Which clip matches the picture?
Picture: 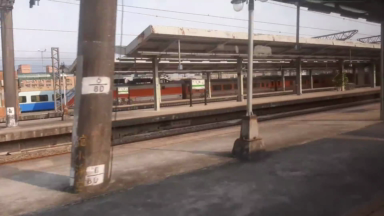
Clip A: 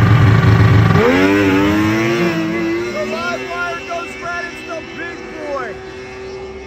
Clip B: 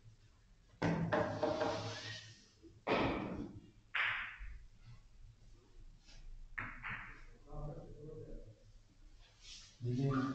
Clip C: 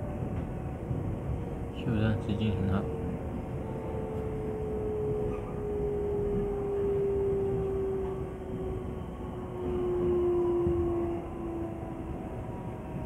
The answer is C